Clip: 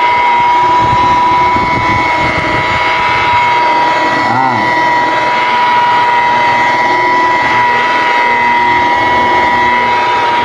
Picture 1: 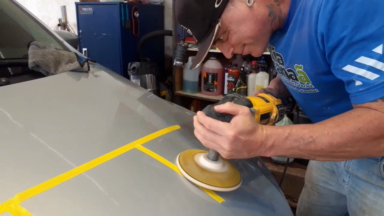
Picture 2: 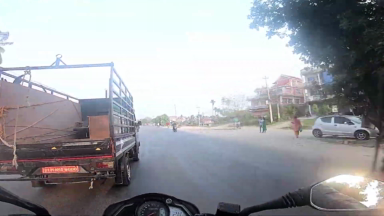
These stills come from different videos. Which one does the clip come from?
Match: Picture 1